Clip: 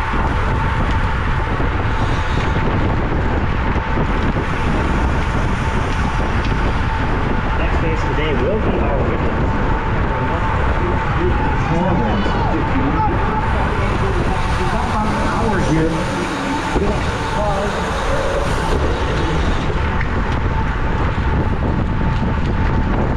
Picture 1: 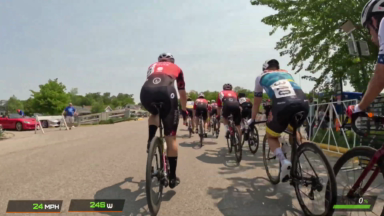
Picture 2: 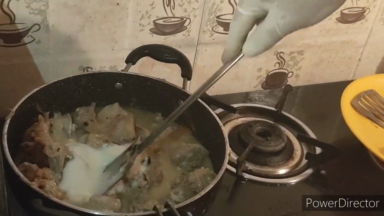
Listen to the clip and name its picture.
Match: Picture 1